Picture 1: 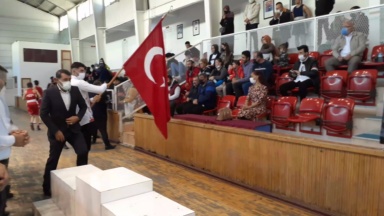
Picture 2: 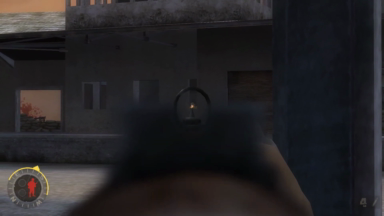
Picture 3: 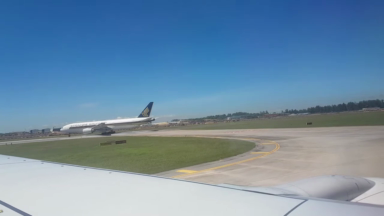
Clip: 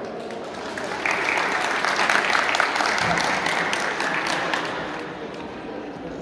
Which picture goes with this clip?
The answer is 1